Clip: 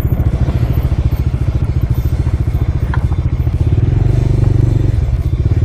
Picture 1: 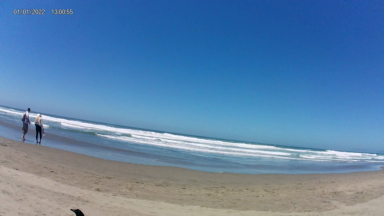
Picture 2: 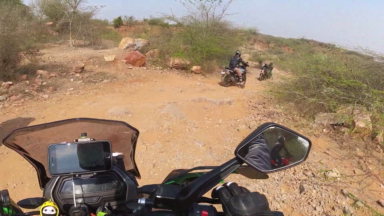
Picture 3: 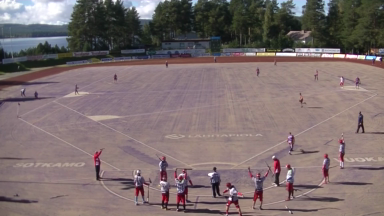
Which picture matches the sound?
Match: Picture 2